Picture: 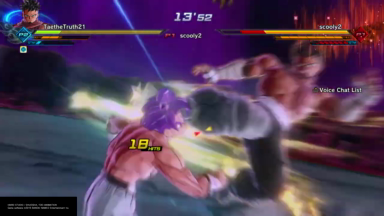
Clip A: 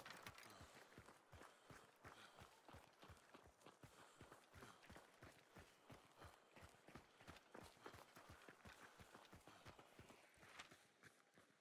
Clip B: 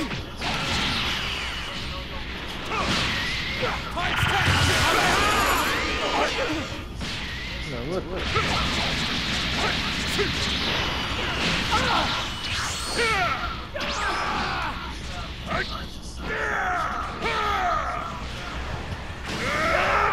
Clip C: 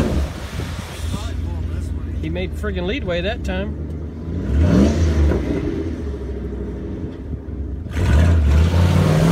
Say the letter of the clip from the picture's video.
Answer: B